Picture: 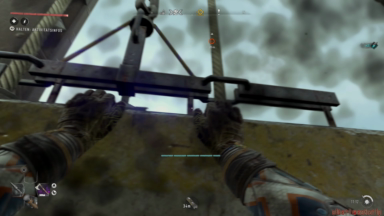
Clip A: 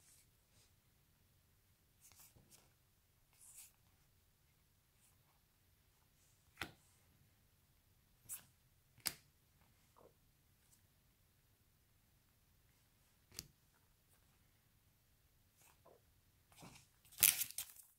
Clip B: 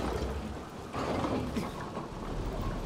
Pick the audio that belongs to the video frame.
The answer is B